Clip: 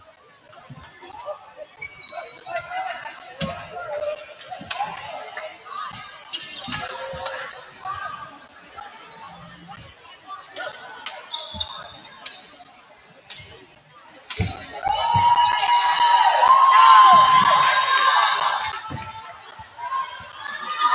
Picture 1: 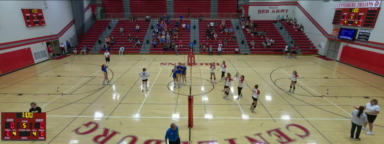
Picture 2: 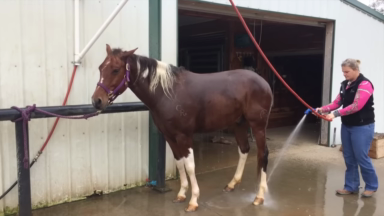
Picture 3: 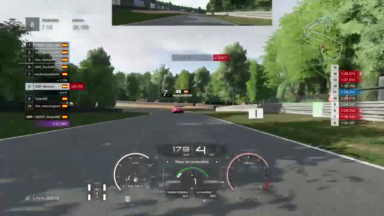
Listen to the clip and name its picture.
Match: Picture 1